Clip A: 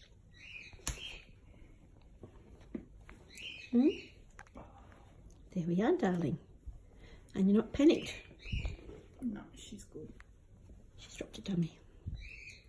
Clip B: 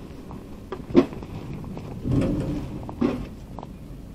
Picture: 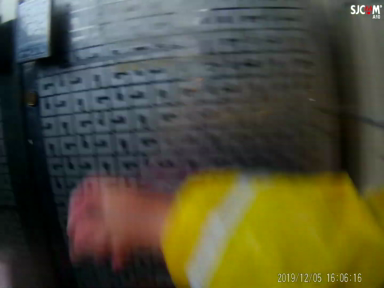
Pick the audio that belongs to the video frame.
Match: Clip B